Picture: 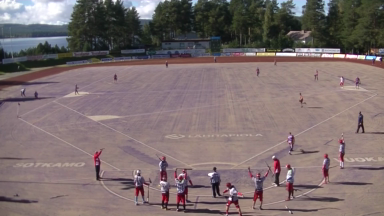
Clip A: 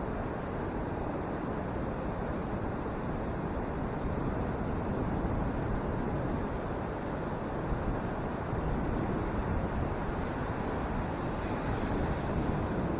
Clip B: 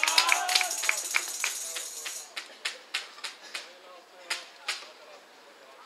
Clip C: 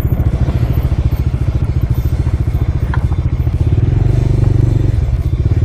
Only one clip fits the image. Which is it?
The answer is B